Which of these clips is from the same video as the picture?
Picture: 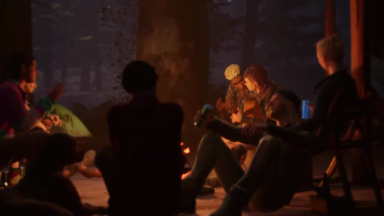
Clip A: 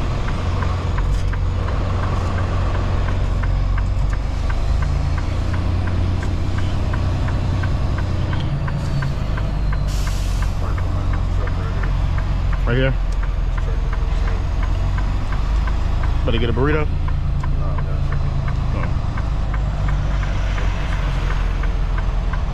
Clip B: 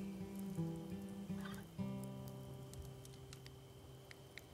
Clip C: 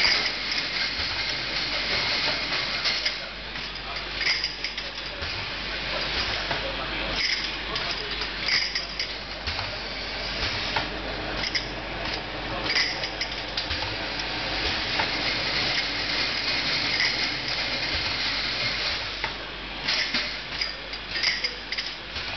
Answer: B